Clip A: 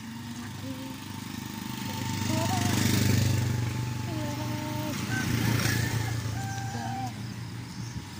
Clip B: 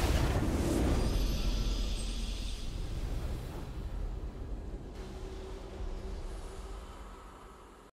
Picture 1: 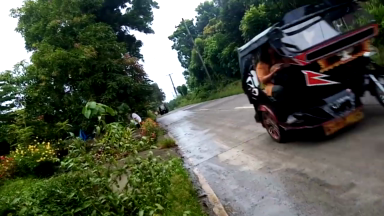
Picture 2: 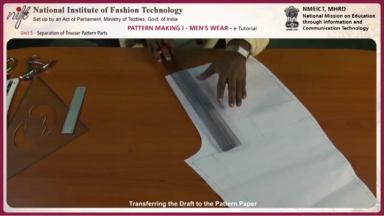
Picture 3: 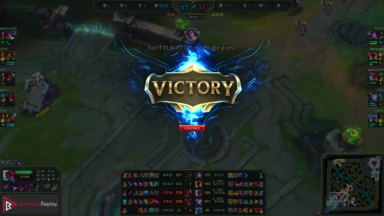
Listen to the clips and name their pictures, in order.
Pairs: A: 1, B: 3